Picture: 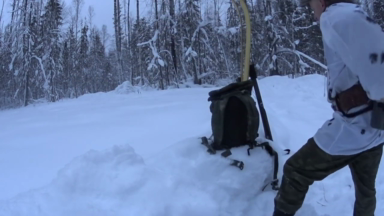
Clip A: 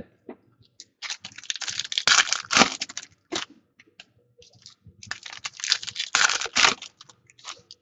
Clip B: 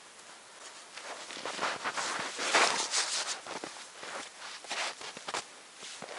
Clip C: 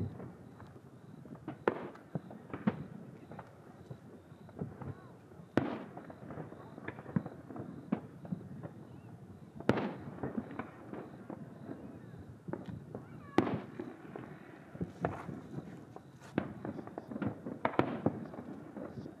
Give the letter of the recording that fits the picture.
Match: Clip B